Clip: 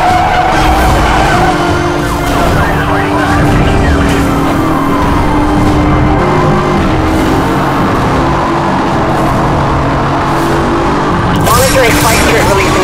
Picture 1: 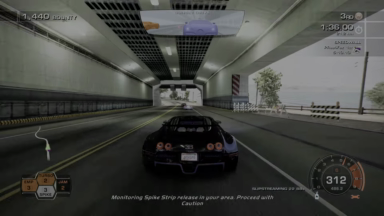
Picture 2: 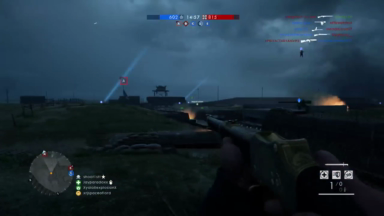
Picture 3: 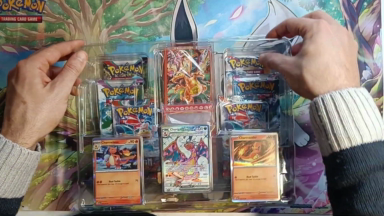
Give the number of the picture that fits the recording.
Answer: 1